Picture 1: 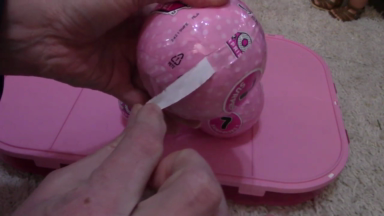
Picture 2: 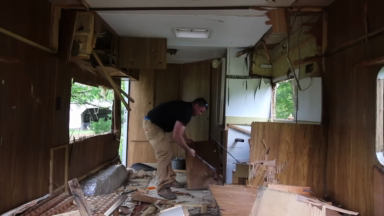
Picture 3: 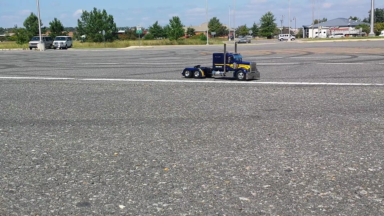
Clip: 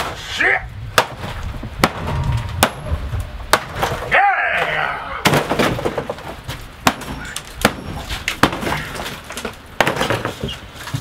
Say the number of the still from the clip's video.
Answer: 2